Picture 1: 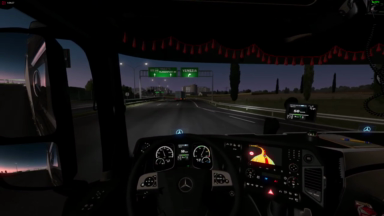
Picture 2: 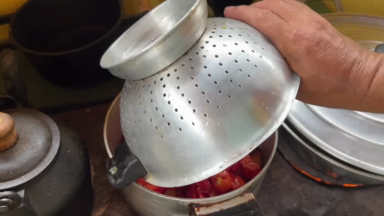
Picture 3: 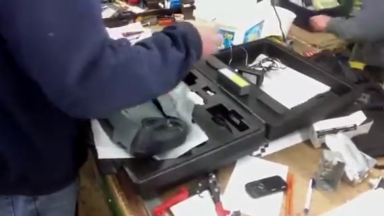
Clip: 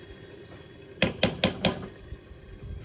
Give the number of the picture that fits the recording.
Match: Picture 2